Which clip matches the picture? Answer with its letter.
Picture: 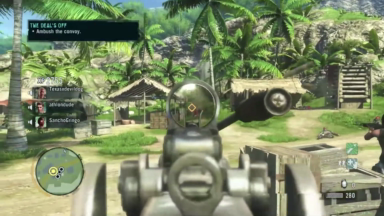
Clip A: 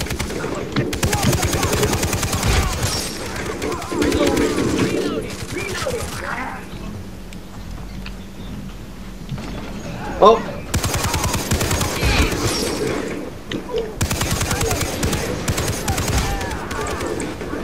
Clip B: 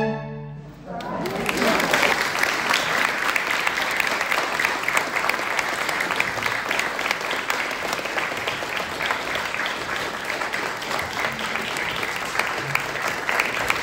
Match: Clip A